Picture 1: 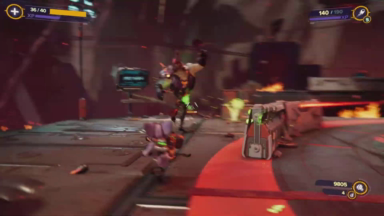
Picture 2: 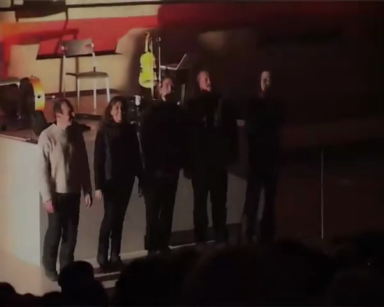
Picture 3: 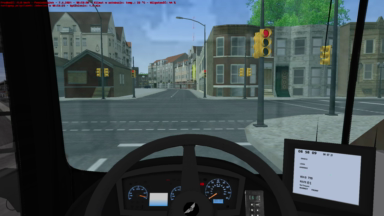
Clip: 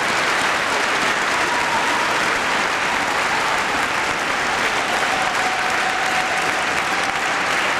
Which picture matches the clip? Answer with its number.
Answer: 2